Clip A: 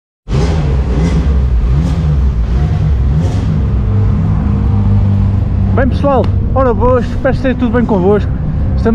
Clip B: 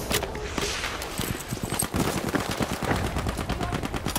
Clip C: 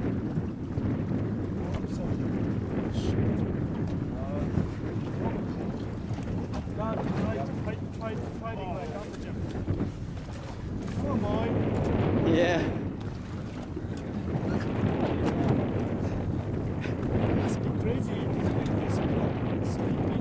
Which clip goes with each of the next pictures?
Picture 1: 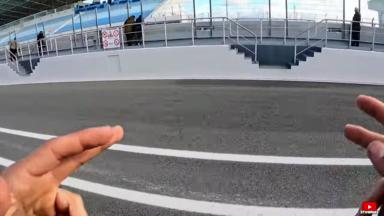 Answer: A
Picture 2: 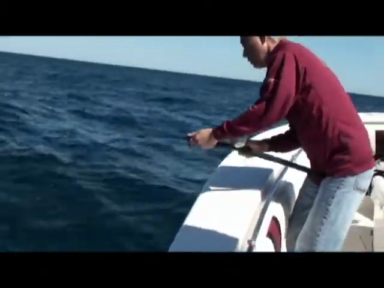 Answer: C